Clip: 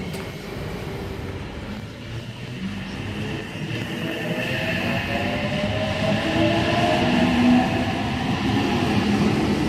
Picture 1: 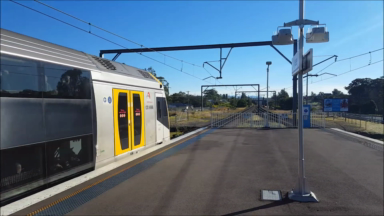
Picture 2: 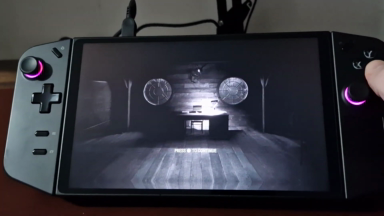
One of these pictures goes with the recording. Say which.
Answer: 1